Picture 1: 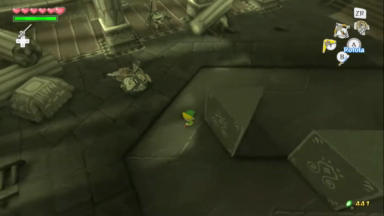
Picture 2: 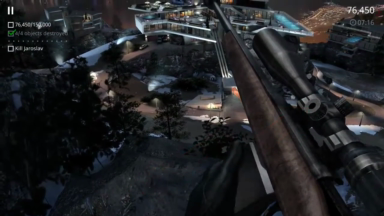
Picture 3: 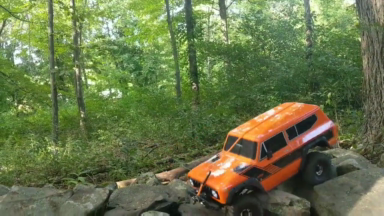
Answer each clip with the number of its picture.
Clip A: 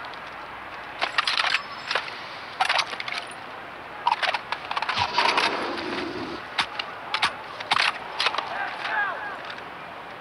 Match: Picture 2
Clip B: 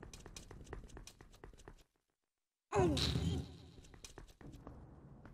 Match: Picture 1